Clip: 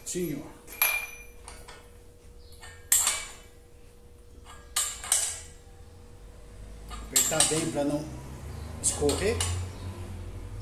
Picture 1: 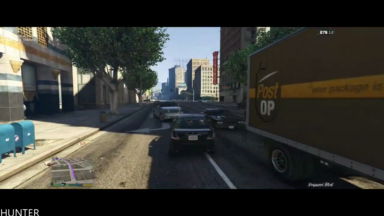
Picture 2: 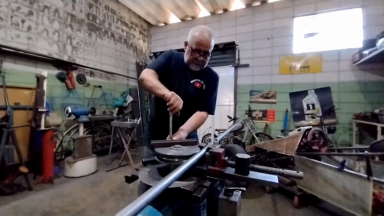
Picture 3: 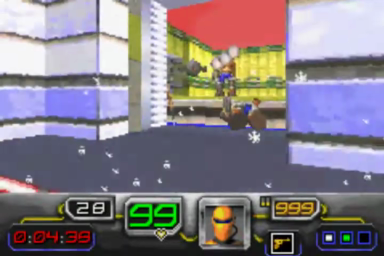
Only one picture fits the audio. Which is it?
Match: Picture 2